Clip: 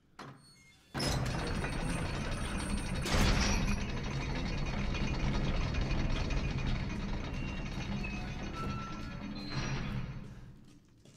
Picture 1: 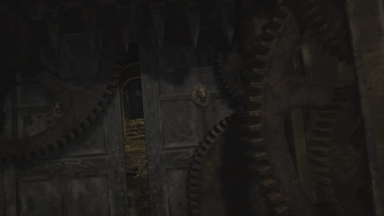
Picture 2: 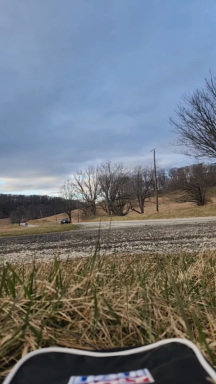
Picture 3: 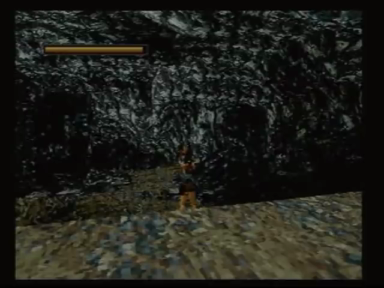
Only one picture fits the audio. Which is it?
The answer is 1